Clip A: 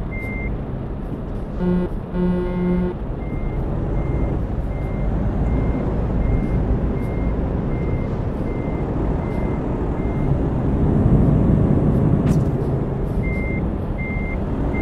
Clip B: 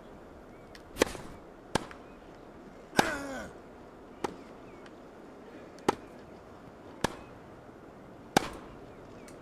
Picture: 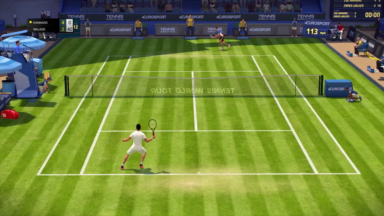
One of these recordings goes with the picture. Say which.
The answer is B